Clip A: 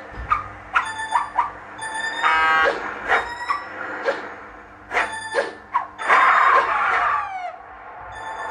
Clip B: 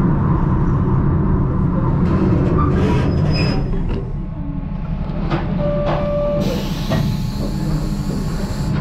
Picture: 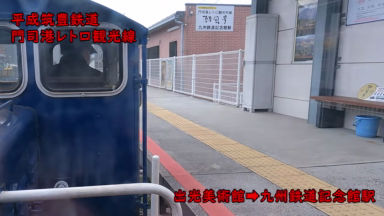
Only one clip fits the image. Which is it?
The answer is B